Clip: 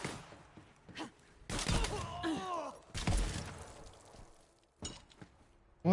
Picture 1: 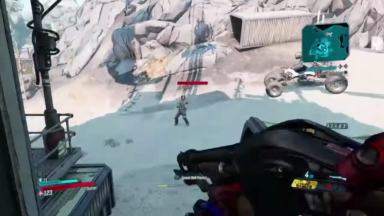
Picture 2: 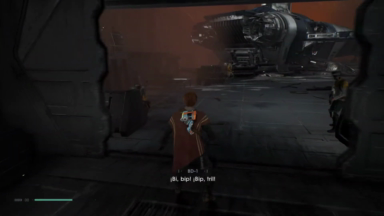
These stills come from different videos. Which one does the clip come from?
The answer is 1